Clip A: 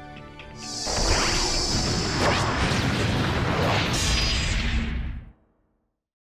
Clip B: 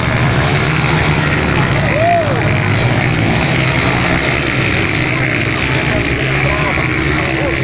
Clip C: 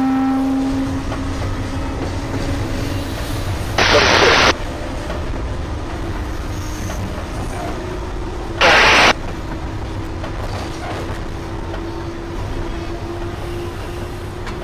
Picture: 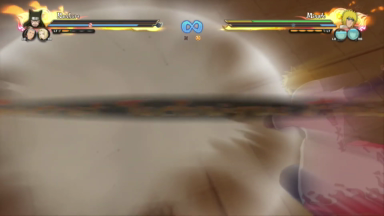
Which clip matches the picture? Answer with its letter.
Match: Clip A